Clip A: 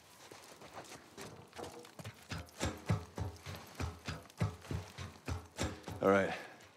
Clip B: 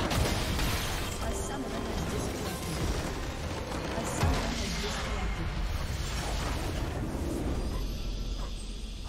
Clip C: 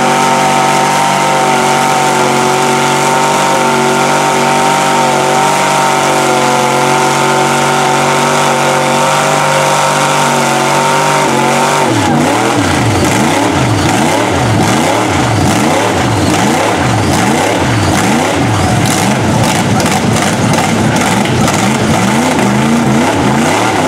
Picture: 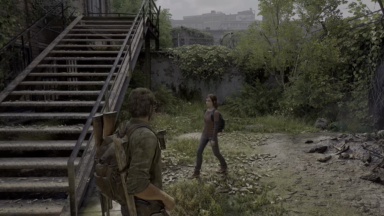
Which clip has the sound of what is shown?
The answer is A